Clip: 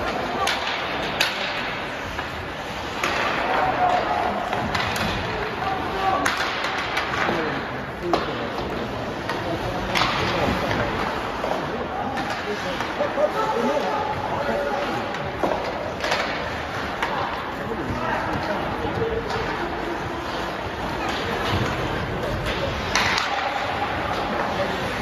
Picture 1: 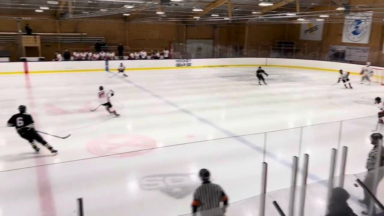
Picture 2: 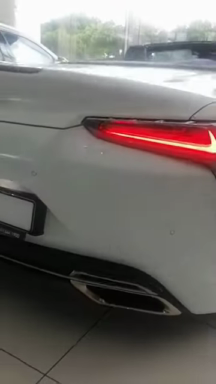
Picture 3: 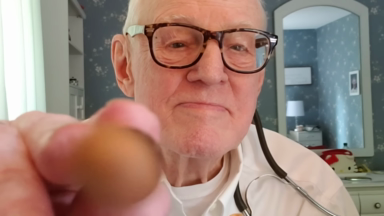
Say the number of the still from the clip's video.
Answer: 1